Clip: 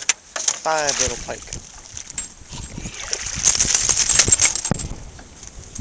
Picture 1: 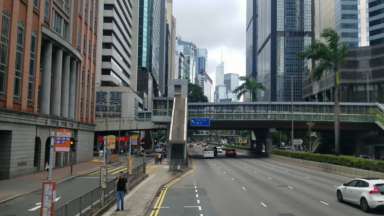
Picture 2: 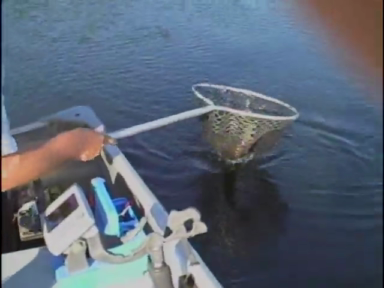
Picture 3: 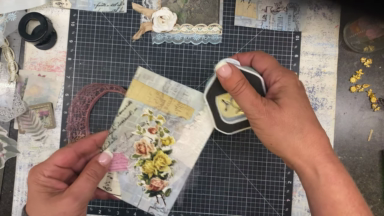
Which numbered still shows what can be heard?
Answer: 2